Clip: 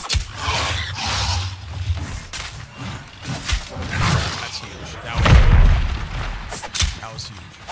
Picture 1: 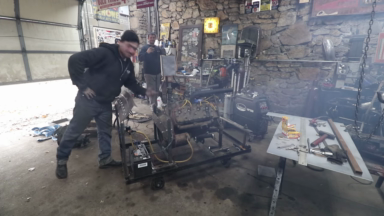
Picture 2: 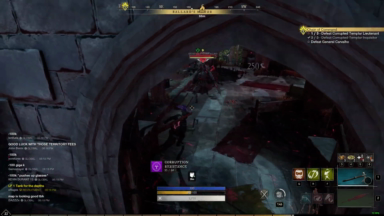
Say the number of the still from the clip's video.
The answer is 2